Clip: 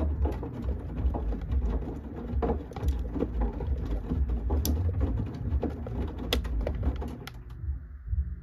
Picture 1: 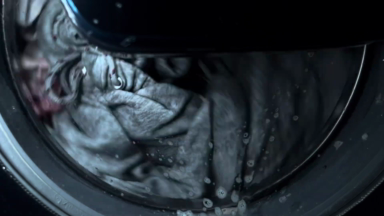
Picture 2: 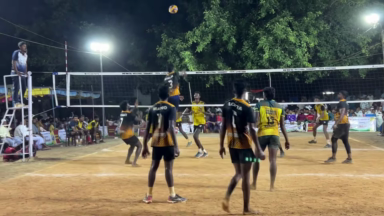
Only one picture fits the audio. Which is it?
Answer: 1